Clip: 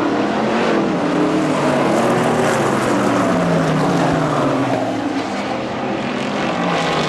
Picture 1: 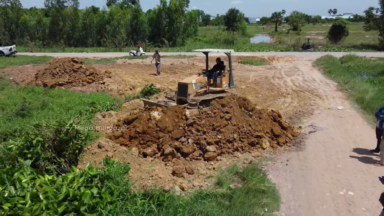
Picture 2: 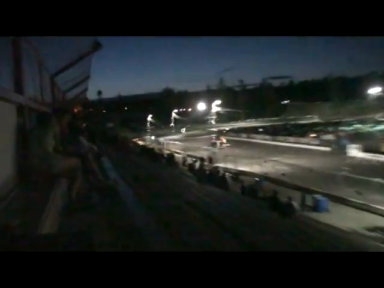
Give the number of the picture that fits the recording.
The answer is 2